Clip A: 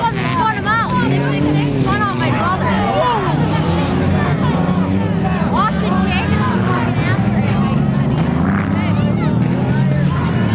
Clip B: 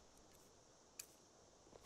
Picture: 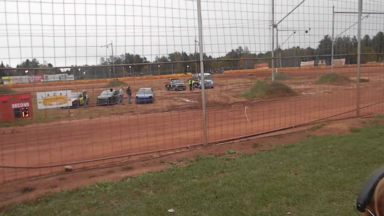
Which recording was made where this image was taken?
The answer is A